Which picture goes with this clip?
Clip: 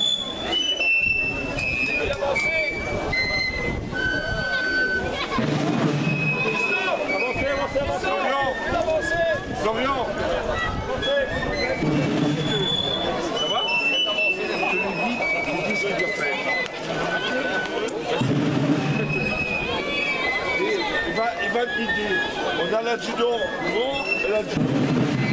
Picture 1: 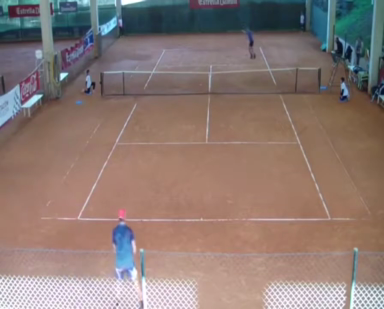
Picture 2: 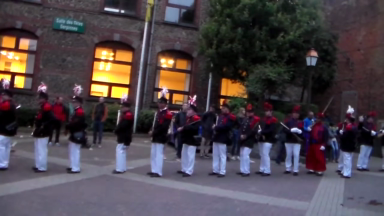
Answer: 2